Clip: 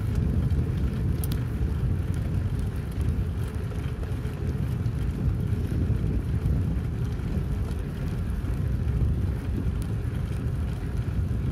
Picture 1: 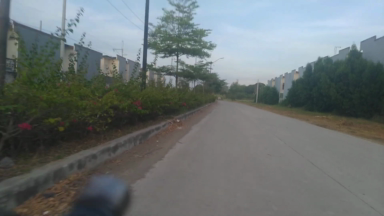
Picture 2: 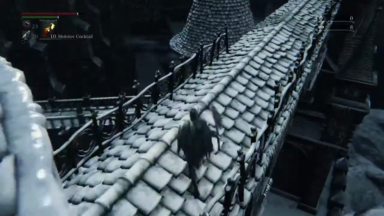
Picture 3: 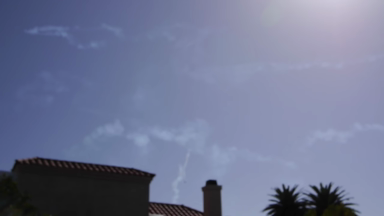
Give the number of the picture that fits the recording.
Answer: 1